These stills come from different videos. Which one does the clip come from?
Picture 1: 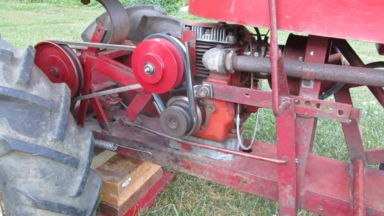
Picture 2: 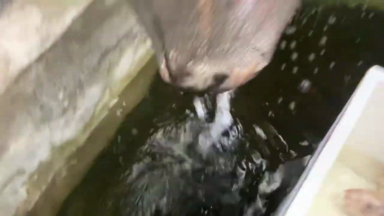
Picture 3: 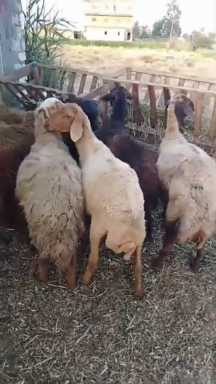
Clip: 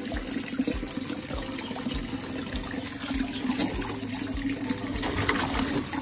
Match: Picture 2